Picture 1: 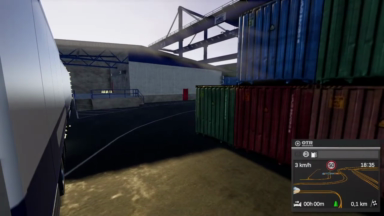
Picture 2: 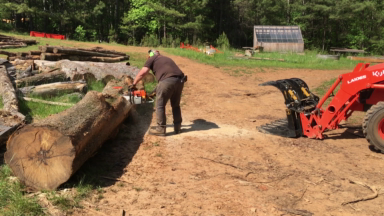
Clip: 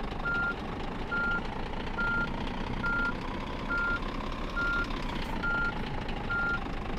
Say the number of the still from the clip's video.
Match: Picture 1